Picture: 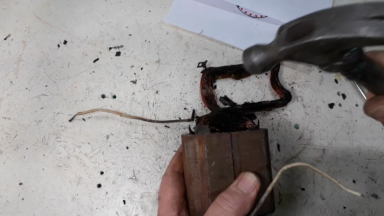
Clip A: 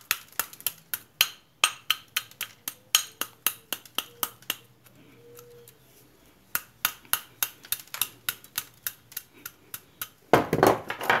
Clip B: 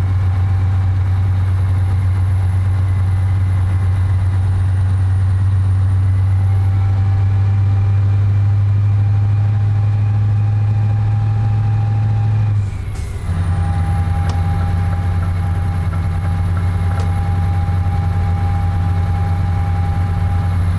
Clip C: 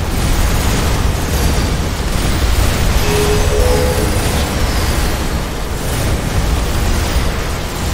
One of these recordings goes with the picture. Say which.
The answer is A